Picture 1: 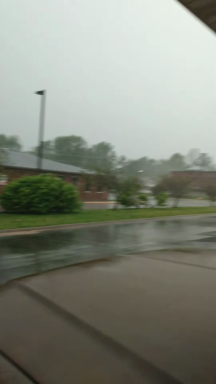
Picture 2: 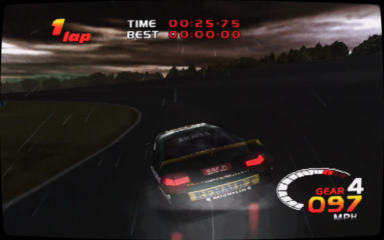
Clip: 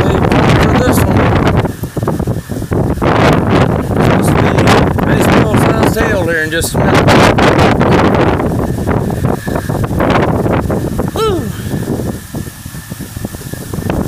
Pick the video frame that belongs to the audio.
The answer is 1